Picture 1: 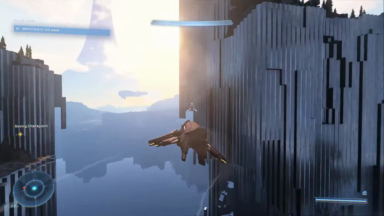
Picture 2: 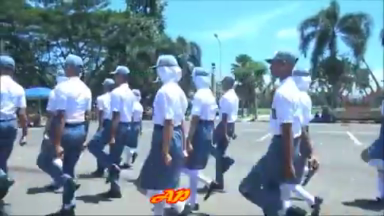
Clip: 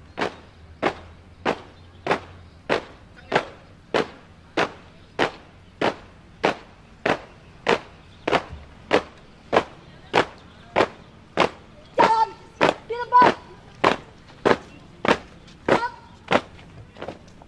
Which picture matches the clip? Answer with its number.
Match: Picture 2